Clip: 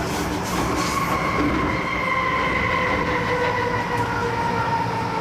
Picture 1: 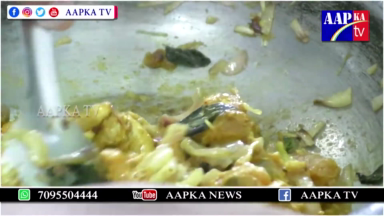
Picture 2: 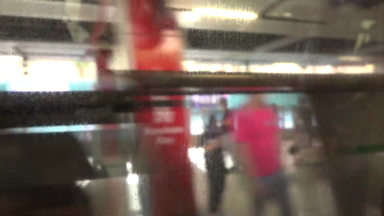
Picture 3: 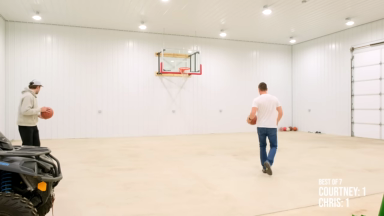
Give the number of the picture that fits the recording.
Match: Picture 2